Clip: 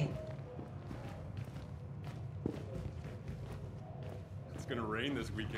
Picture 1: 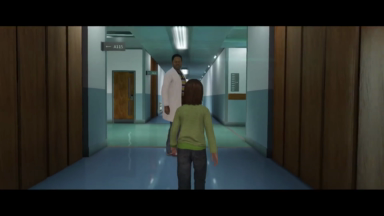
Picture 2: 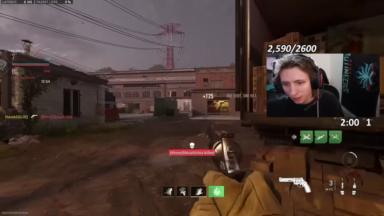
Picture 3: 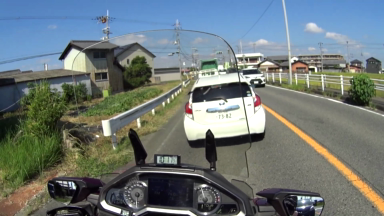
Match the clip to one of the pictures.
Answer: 1